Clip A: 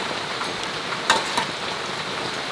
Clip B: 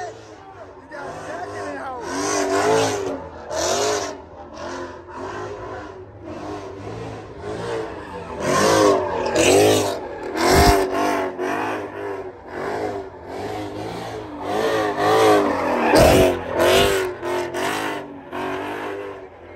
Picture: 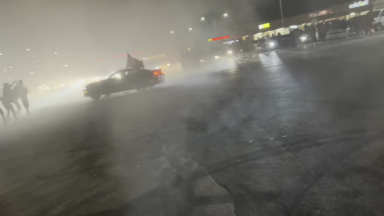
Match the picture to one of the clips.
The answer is B